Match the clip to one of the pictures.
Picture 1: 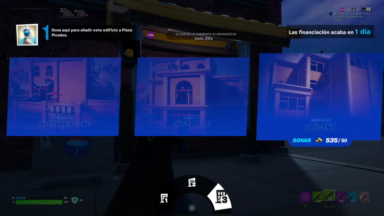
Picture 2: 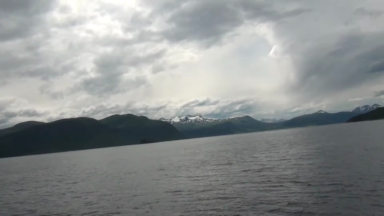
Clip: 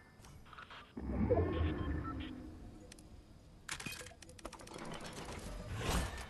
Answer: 1